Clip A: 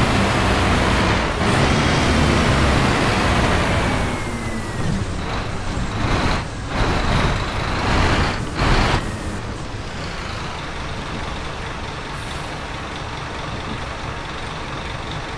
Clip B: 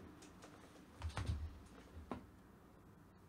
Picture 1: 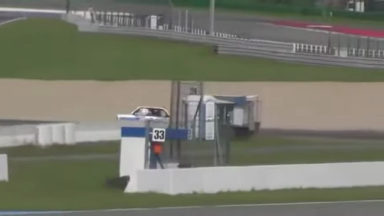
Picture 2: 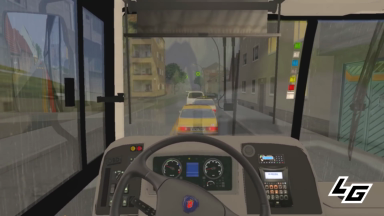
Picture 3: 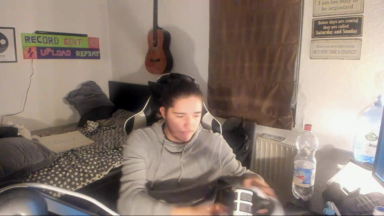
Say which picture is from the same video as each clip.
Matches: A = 2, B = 3